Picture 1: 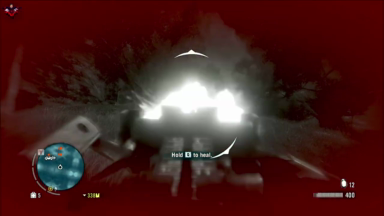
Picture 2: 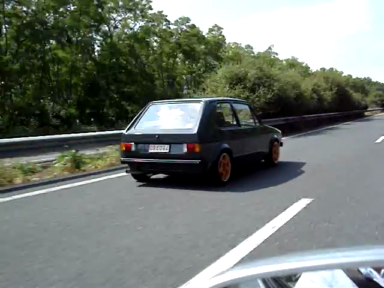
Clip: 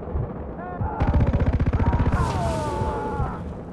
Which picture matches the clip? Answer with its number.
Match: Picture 1